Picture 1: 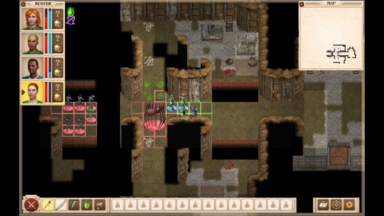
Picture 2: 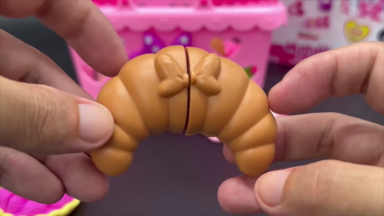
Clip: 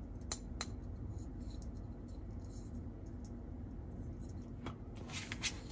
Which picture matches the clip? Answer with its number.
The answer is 2